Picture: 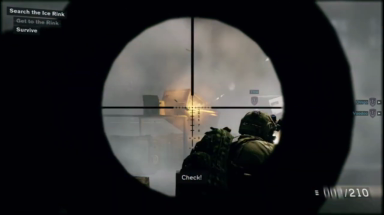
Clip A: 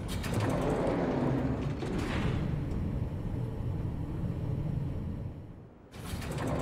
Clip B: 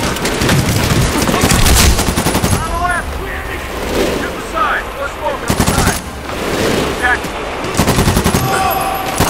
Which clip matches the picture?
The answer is B